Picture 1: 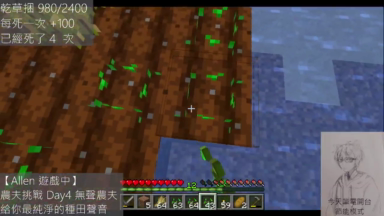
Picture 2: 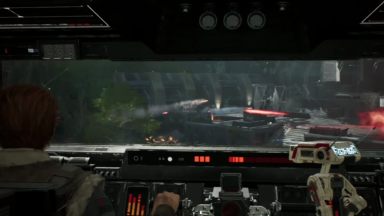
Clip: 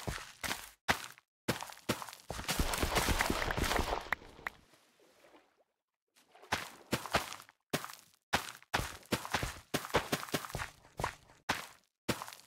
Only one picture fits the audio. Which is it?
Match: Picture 1